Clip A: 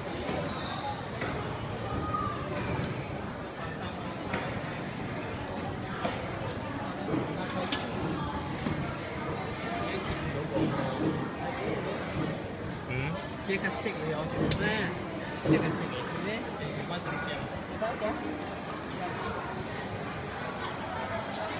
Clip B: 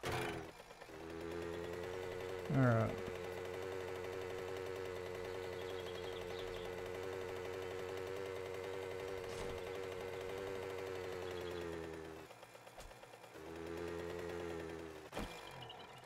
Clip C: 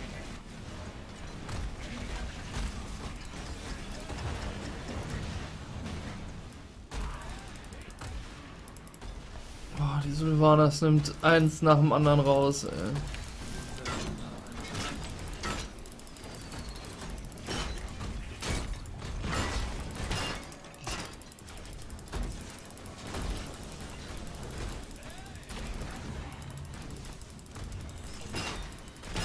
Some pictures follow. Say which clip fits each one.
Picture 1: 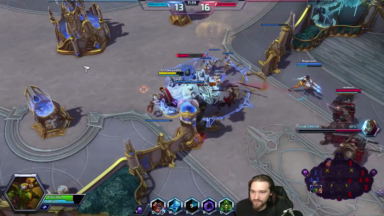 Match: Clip C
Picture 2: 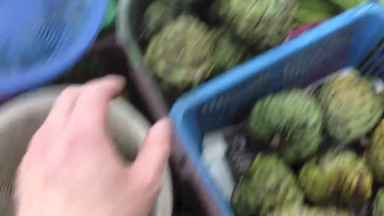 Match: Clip A